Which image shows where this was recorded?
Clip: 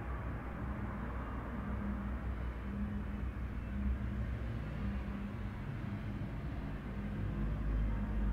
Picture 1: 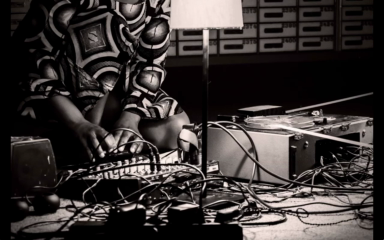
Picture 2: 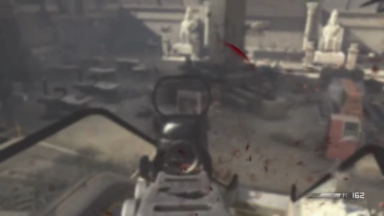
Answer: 1